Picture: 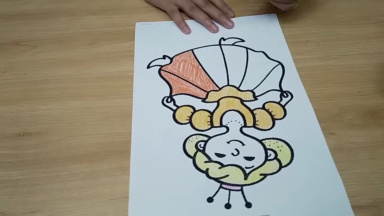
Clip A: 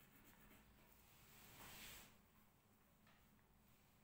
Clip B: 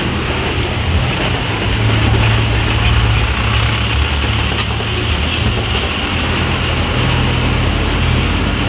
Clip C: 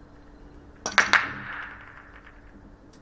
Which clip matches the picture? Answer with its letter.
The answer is A